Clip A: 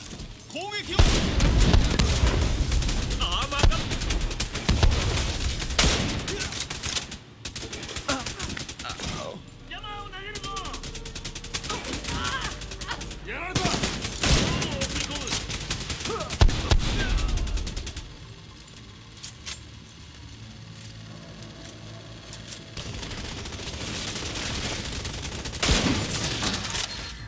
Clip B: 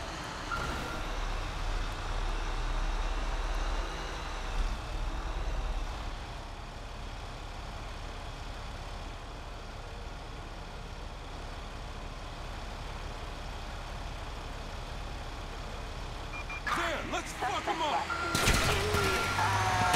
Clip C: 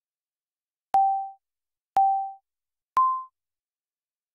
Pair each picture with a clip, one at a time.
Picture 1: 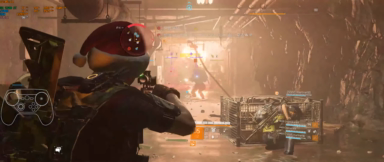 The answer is A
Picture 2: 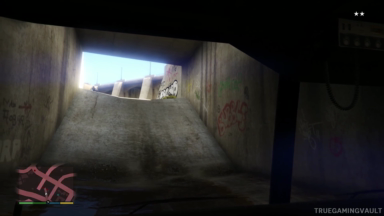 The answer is B